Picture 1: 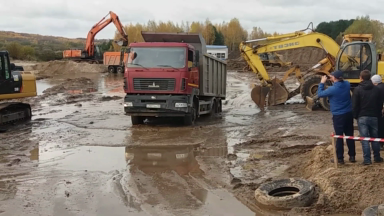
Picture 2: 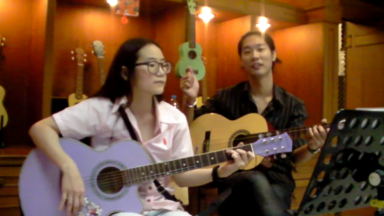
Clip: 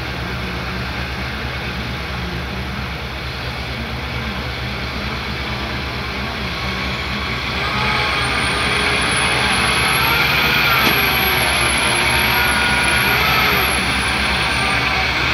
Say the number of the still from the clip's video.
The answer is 1